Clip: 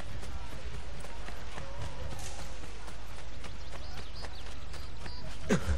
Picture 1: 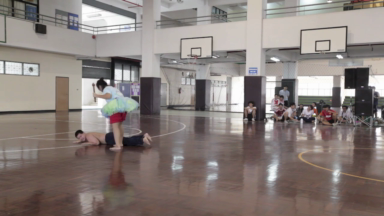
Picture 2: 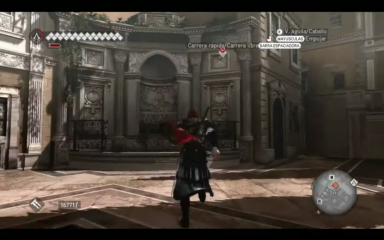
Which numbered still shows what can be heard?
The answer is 2